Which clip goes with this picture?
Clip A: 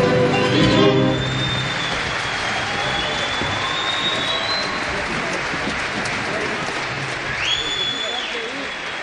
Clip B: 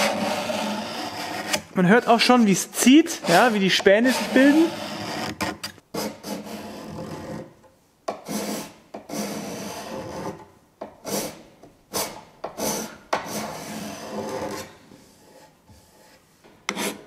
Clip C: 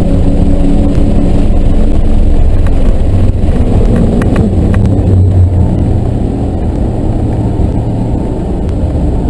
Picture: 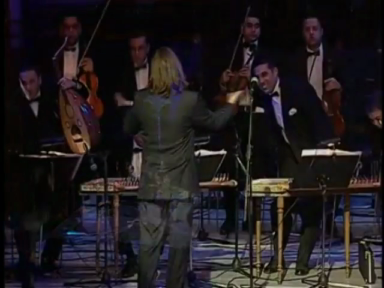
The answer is A